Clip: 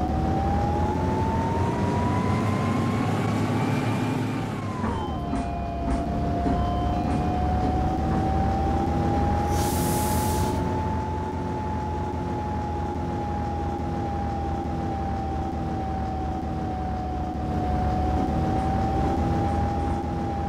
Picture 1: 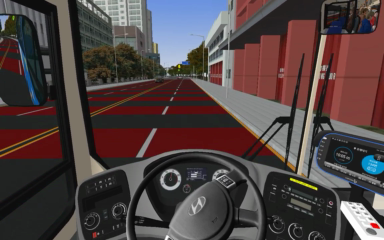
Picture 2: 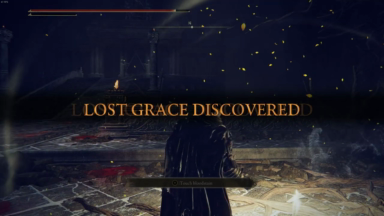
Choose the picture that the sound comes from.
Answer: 1